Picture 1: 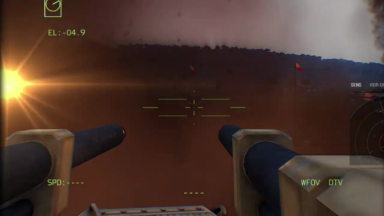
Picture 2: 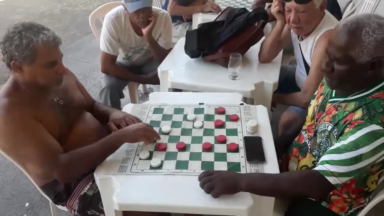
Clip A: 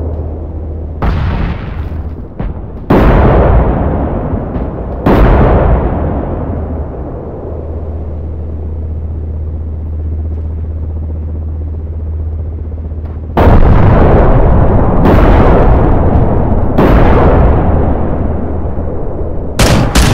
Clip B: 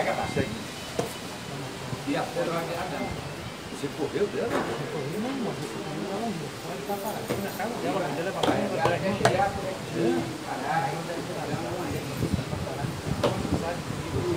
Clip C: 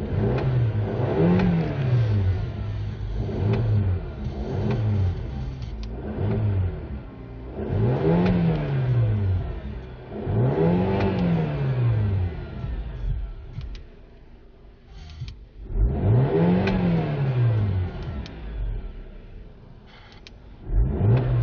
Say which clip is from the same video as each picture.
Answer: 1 A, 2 B